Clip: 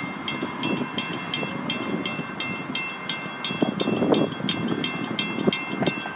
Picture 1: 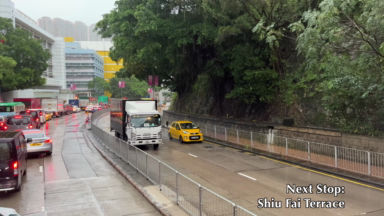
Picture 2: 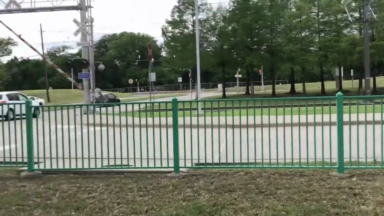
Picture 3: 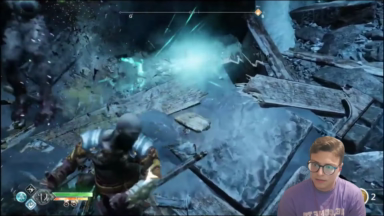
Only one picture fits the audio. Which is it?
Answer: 2